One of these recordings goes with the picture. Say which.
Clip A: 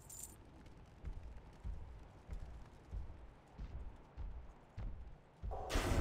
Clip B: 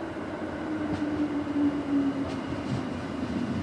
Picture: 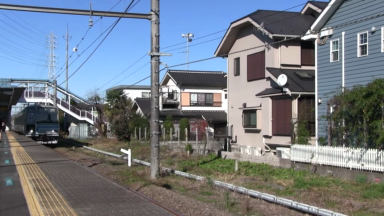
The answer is B